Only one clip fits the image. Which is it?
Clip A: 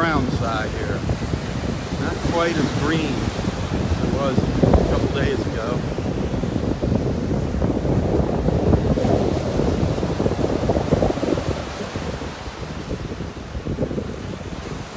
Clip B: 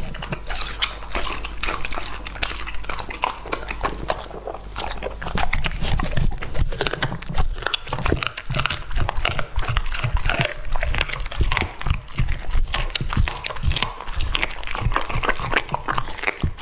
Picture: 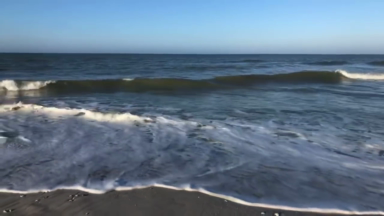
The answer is A